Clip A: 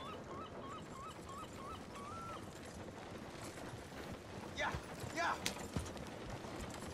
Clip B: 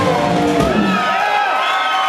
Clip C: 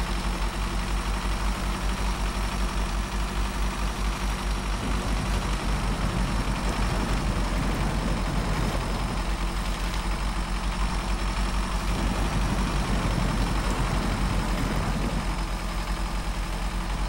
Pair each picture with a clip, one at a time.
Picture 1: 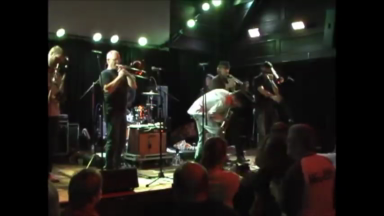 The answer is B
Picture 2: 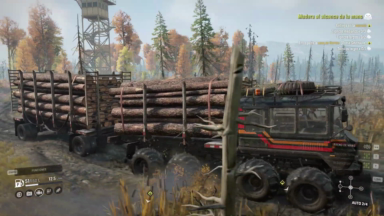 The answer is C